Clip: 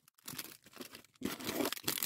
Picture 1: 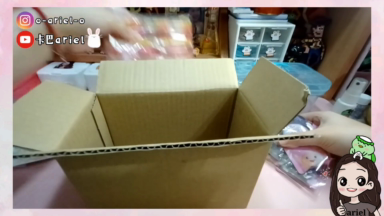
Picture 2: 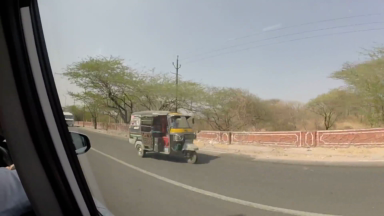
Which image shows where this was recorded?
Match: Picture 1